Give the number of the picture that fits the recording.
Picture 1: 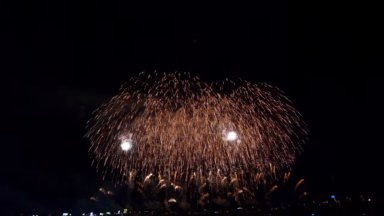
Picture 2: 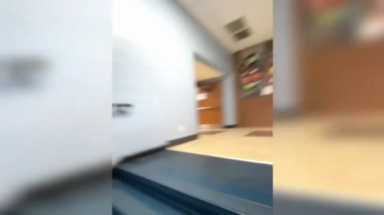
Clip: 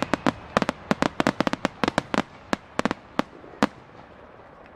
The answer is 1